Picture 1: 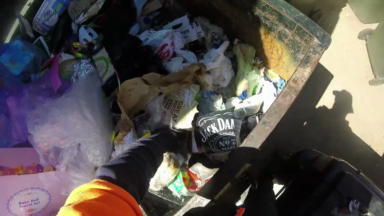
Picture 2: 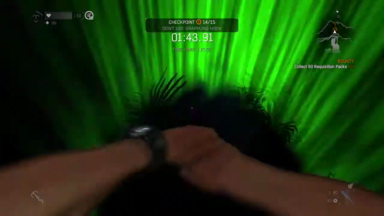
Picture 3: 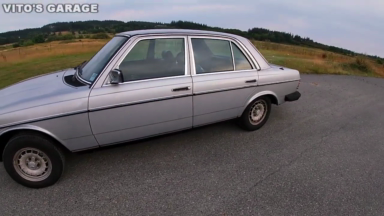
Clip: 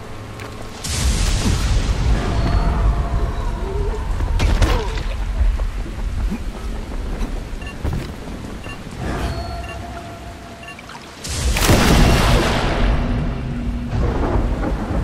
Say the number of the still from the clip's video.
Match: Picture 2